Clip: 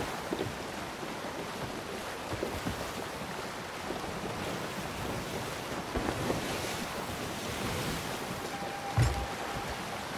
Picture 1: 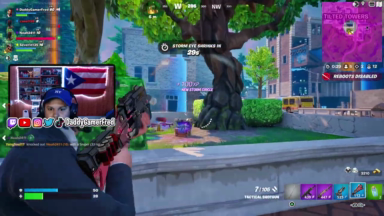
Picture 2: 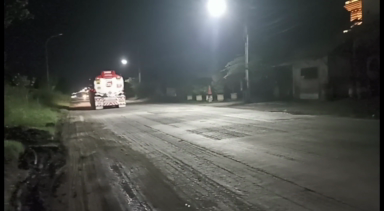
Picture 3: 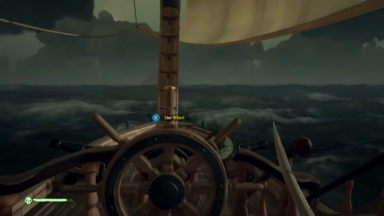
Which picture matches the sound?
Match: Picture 3